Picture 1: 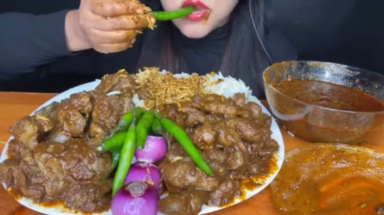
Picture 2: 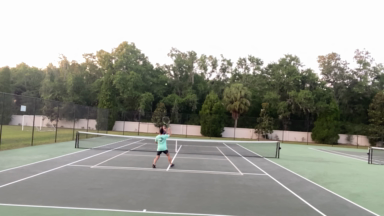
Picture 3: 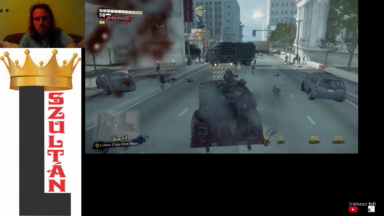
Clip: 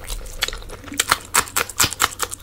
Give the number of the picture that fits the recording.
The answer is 1